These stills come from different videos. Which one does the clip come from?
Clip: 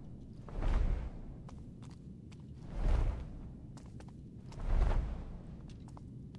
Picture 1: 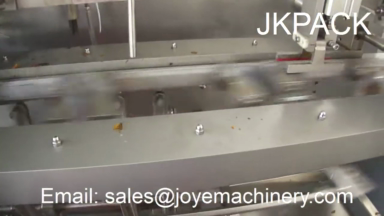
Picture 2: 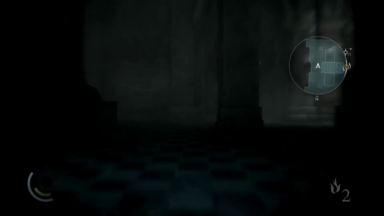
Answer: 2